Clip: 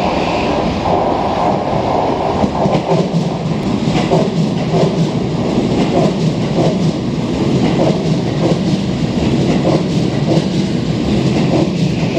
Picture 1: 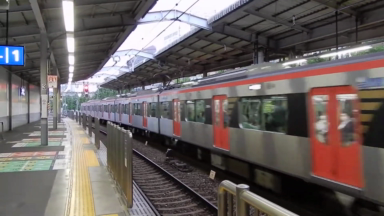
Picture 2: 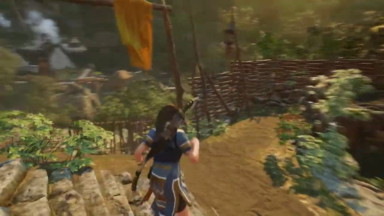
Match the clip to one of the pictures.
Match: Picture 1